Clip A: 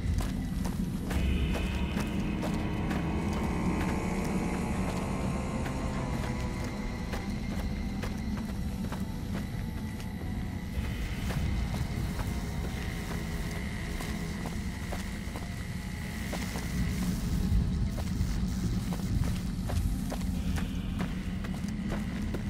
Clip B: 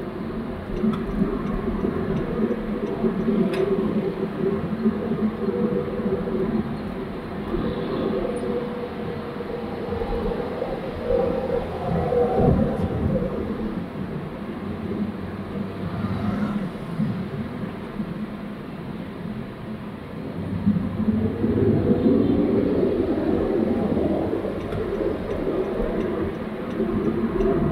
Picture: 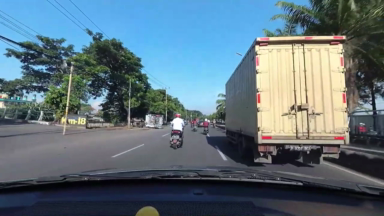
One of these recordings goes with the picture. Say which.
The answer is B